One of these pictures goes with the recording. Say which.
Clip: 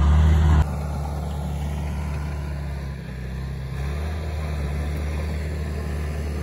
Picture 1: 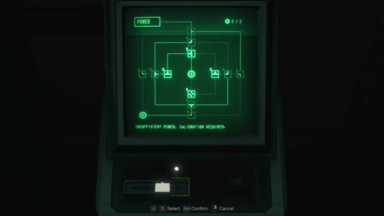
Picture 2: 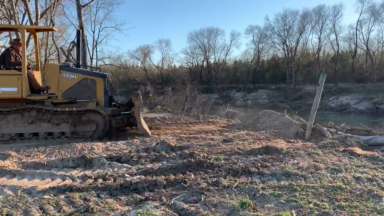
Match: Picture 2